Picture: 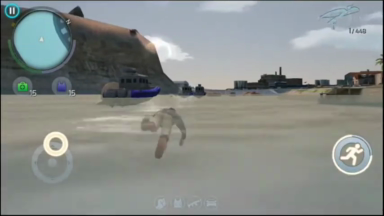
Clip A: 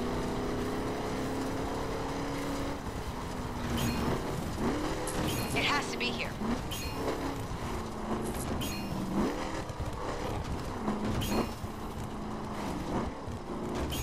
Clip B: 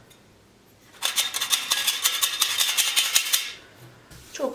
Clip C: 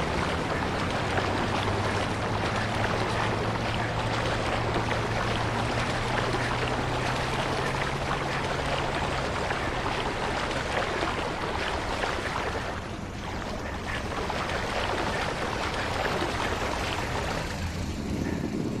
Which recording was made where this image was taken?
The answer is C